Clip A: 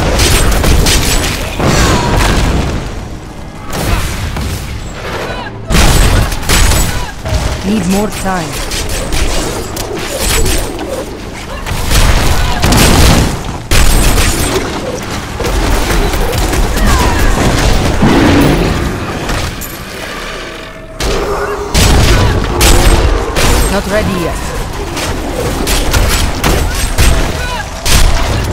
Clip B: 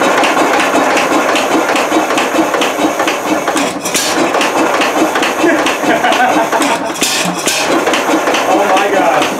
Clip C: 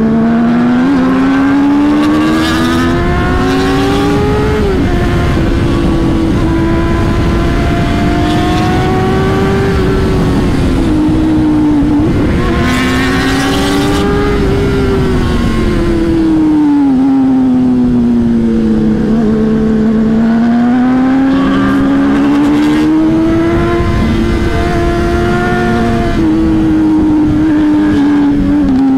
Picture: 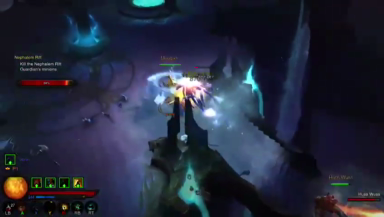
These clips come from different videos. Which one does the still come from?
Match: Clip A